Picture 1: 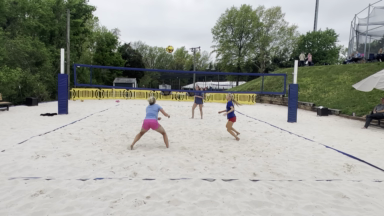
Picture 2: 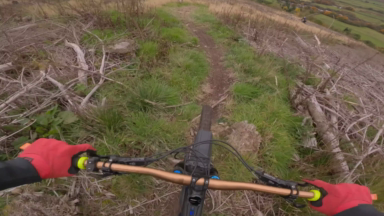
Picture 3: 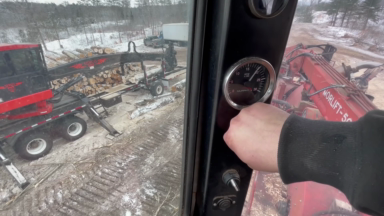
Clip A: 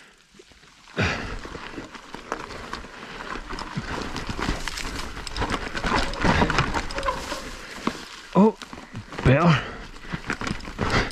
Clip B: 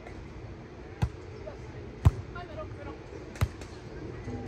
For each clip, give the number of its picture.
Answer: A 2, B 1